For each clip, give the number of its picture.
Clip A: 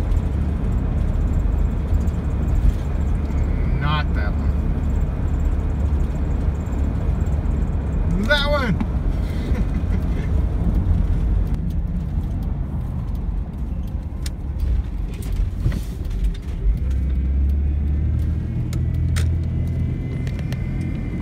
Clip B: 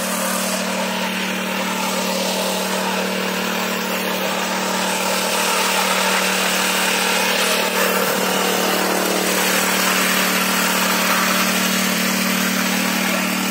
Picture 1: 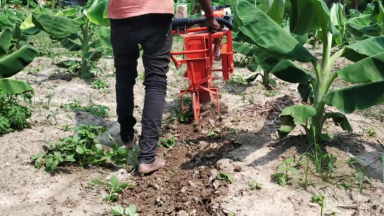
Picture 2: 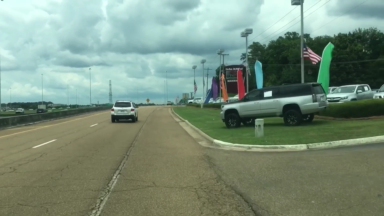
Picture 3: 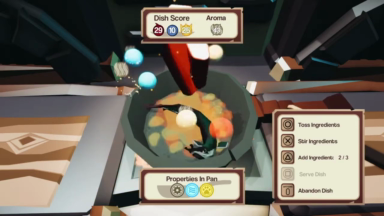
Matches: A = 2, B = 1